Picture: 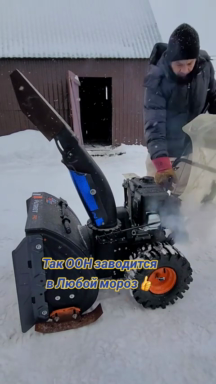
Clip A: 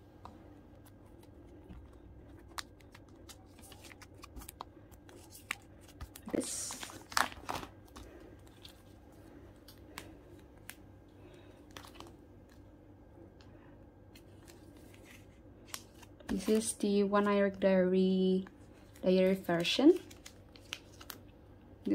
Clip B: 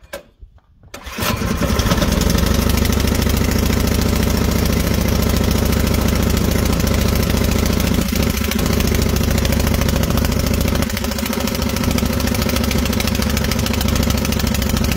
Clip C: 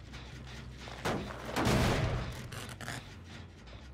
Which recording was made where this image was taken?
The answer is B